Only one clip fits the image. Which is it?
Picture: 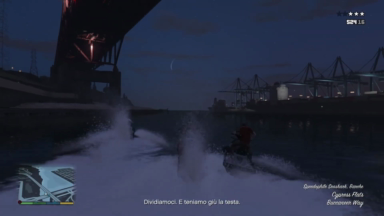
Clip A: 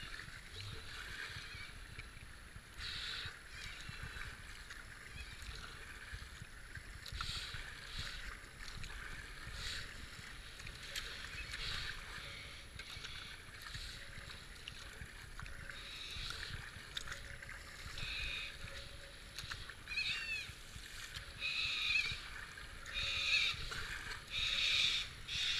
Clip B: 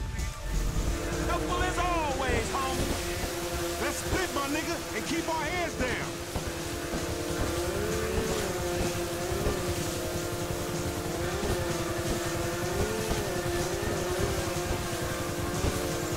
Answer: B